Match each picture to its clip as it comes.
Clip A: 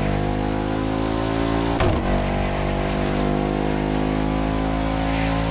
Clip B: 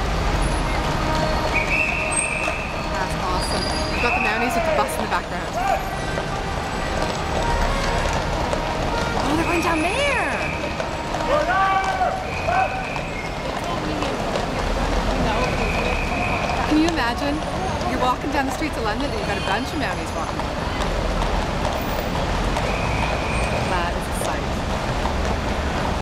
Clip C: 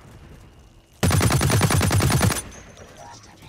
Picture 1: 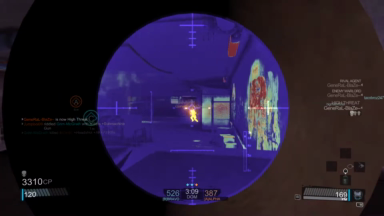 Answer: C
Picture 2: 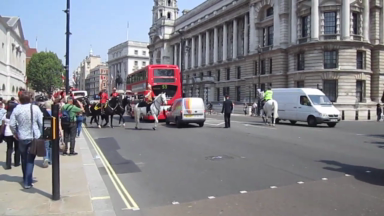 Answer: B